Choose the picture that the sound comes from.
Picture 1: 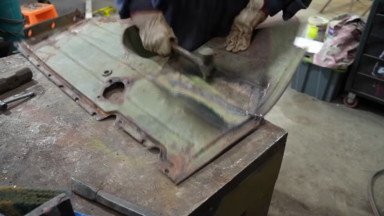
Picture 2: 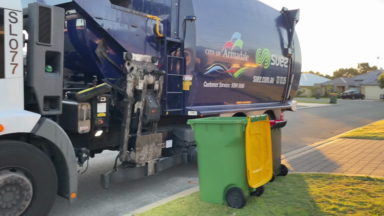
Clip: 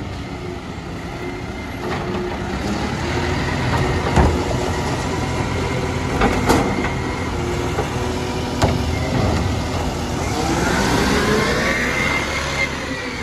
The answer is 2